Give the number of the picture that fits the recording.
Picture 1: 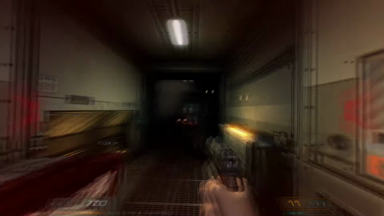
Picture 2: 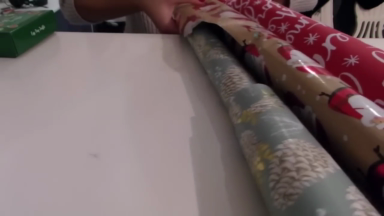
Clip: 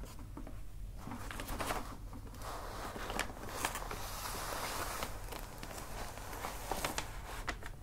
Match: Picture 2